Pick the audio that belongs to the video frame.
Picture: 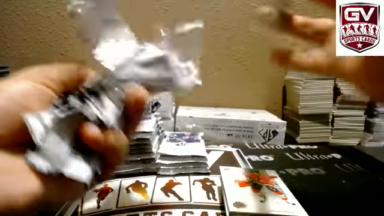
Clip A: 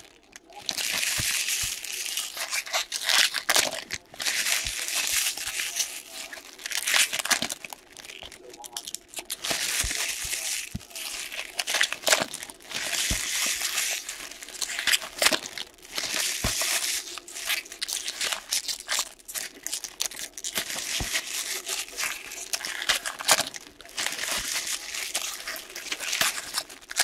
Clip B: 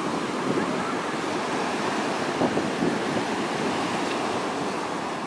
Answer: A